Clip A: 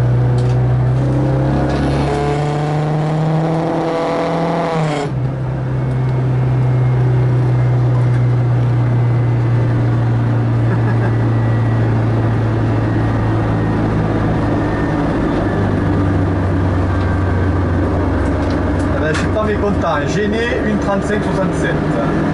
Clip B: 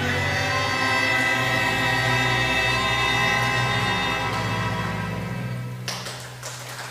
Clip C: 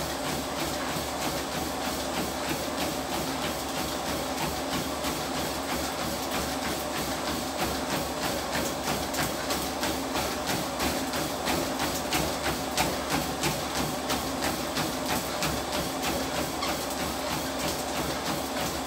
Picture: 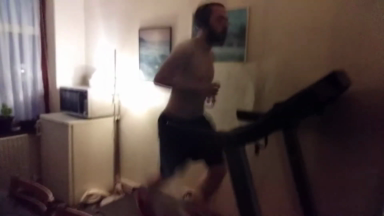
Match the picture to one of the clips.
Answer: C